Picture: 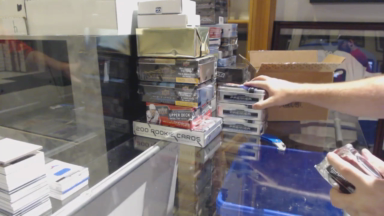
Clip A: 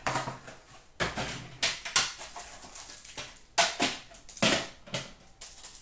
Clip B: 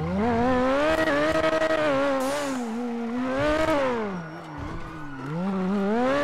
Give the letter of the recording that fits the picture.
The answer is A